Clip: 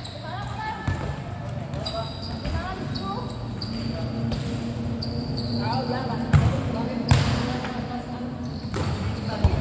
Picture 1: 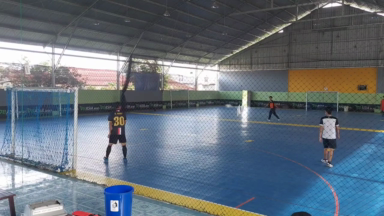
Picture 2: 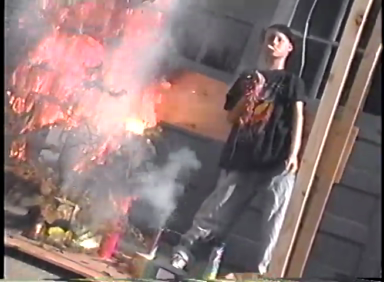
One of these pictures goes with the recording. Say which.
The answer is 1